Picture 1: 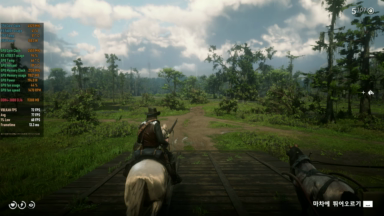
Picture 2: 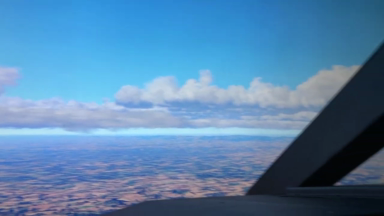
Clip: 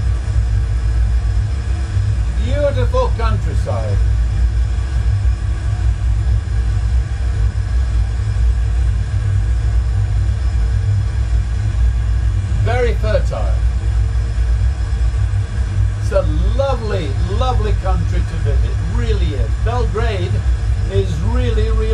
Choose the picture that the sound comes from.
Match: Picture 2